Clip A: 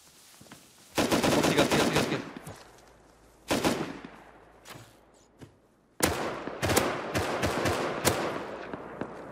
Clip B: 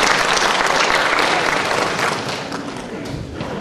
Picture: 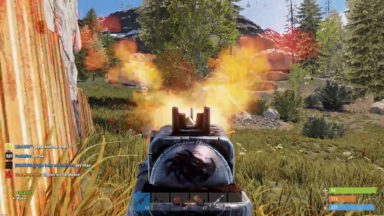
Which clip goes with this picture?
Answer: A